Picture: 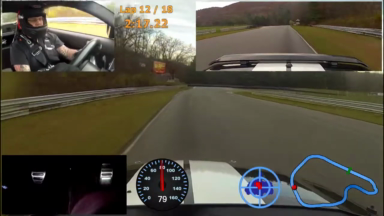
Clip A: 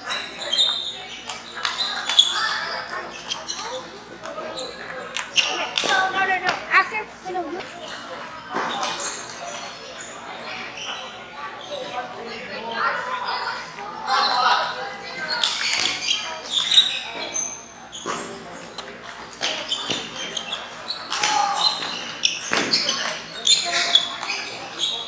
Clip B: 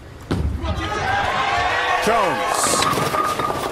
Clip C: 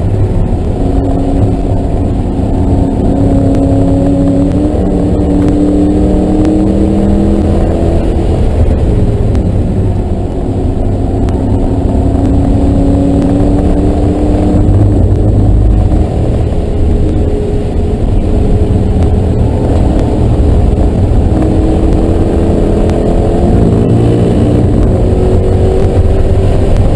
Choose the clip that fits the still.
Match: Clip C